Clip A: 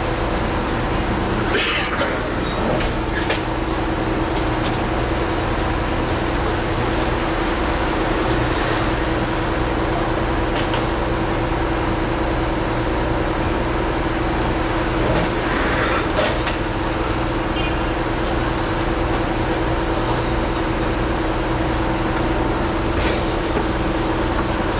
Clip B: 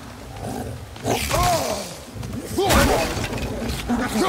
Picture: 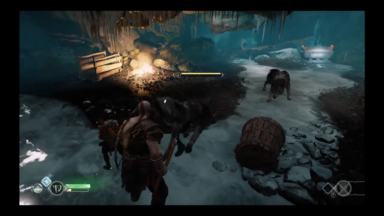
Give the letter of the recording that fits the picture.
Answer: B